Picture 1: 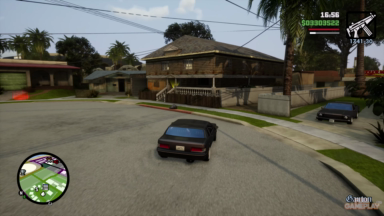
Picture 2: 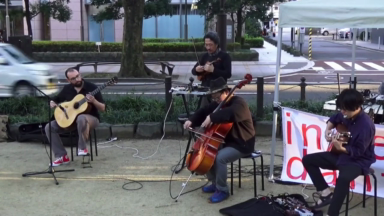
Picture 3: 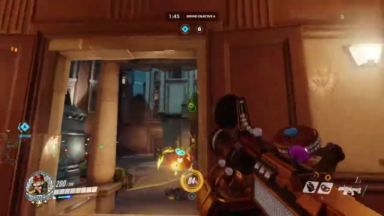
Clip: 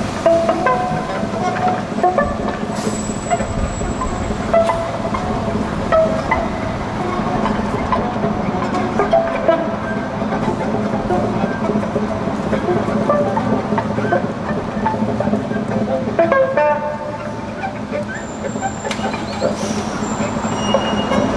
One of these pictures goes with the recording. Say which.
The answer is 2